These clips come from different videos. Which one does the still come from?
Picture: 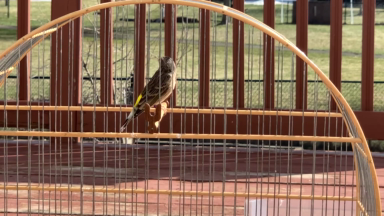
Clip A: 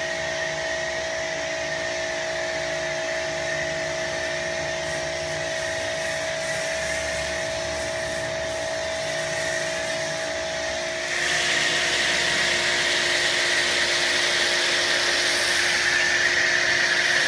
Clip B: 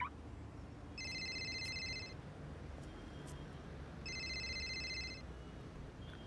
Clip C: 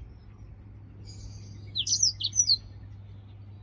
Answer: C